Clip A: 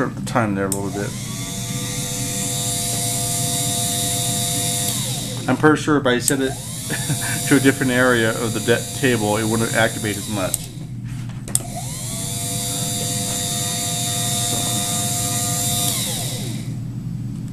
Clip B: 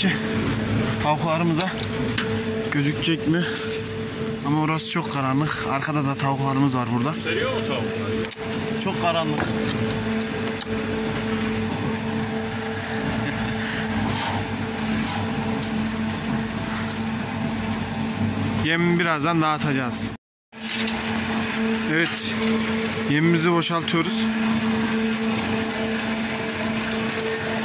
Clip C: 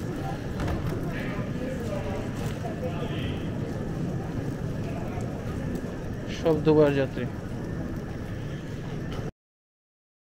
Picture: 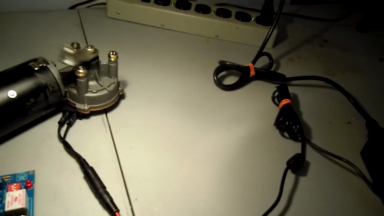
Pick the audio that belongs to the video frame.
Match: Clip A